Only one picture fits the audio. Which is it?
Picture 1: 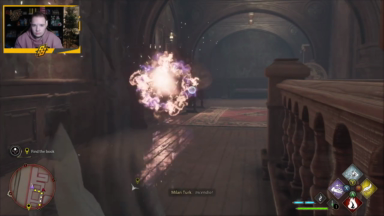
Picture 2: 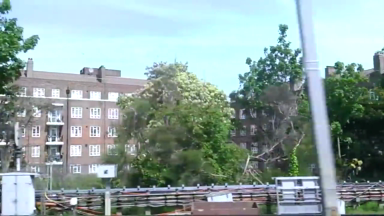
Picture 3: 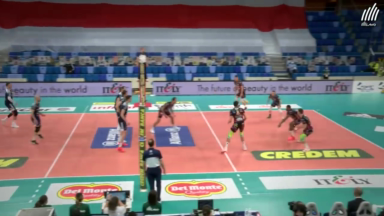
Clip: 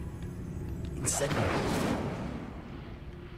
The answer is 1